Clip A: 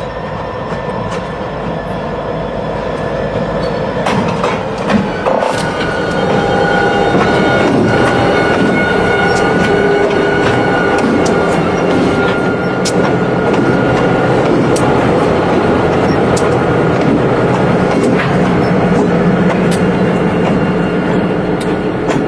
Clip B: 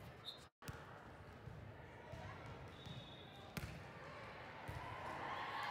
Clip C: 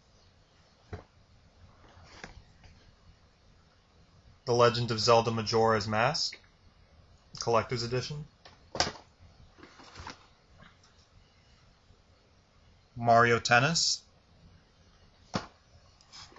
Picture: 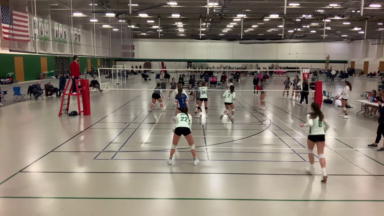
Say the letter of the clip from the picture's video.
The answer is B